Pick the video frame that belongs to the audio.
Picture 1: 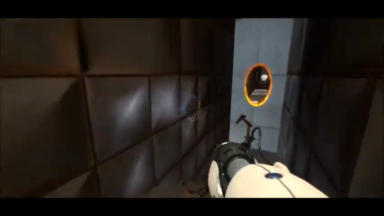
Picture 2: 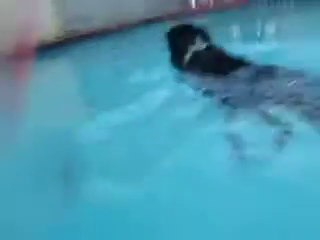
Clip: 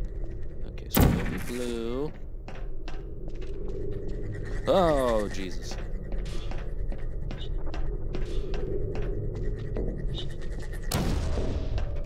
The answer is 1